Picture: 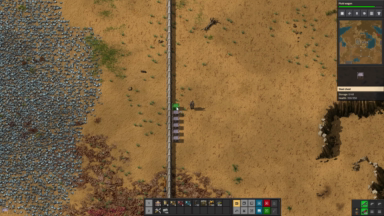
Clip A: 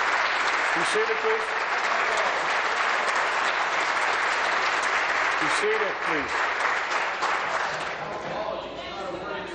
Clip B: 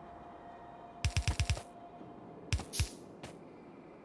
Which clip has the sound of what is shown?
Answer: B